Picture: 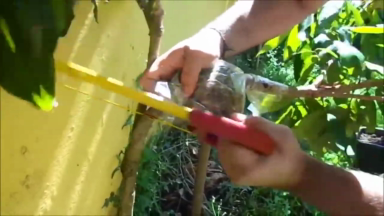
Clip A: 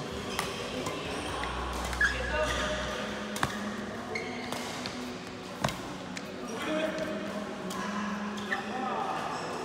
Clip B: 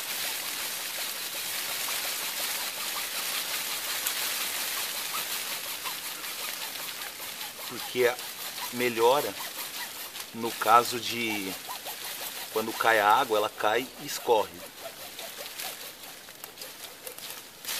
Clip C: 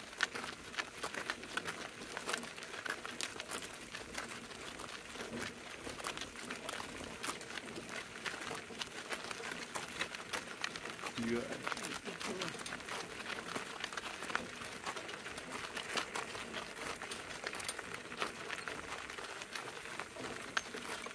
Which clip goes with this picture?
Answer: B